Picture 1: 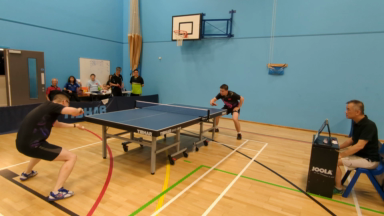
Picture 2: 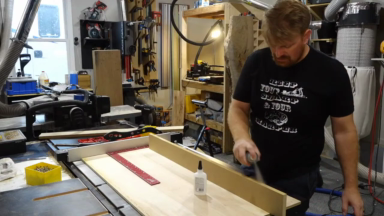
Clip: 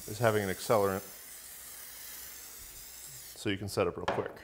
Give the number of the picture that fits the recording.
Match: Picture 2